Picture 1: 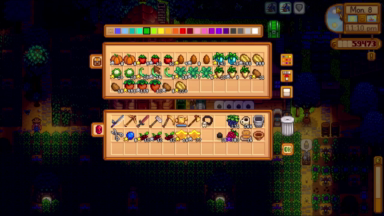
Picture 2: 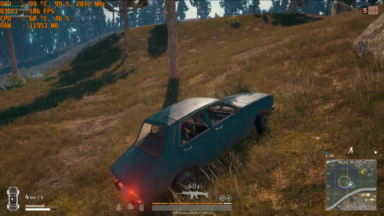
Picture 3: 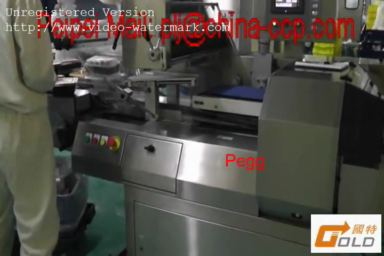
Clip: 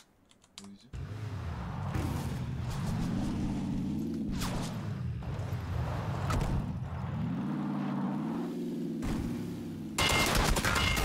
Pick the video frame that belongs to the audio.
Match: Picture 2